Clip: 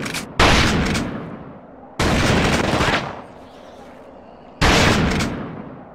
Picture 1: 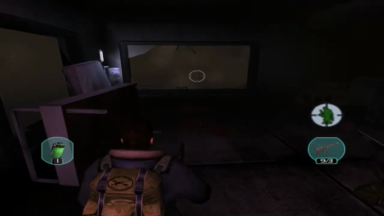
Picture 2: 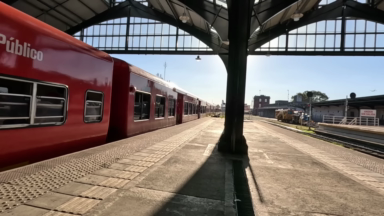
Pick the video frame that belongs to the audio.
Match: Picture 1